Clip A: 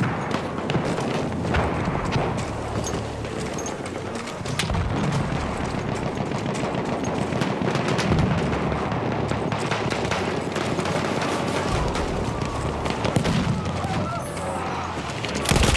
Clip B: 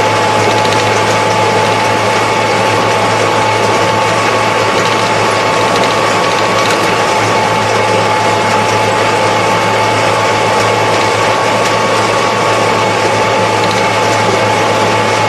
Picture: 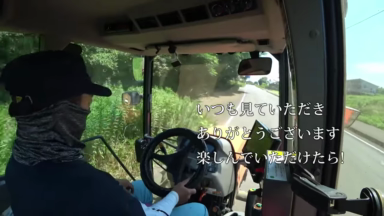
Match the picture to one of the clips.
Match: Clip B